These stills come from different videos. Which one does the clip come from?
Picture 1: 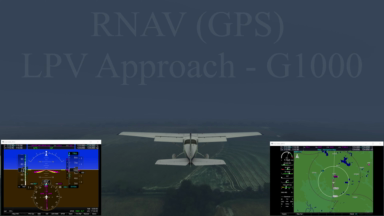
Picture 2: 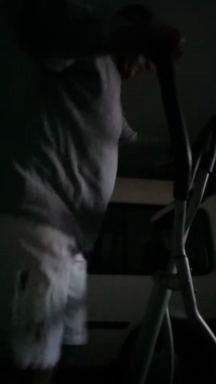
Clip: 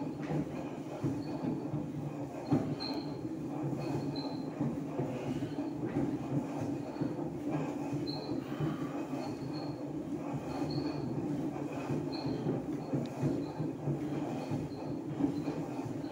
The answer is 2